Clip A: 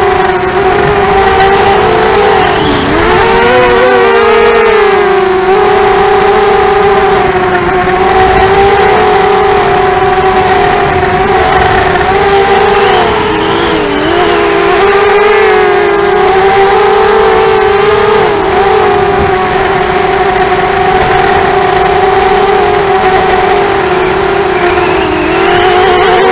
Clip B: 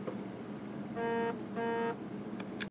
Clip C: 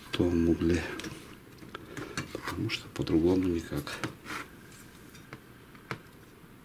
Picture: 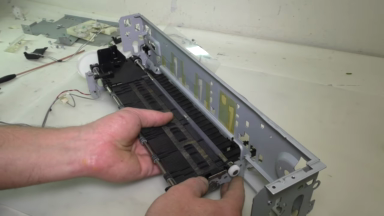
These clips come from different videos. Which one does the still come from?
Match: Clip C